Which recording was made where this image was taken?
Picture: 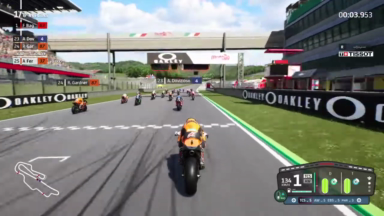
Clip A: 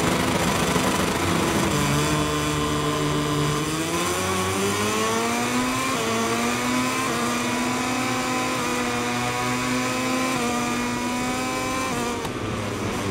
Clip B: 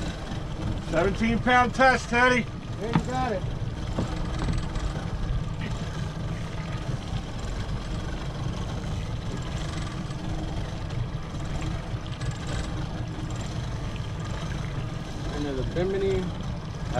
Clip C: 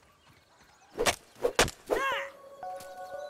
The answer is A